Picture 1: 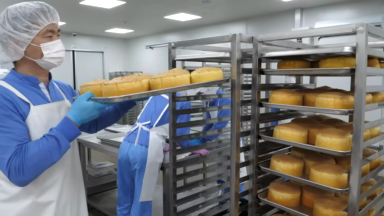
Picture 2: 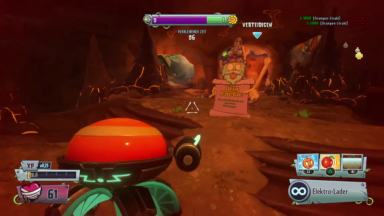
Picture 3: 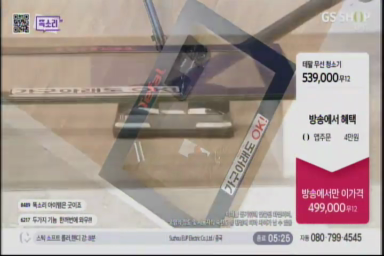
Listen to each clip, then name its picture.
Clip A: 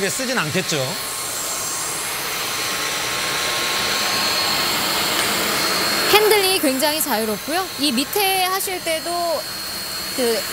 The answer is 3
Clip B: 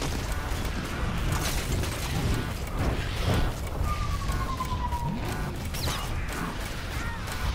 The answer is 2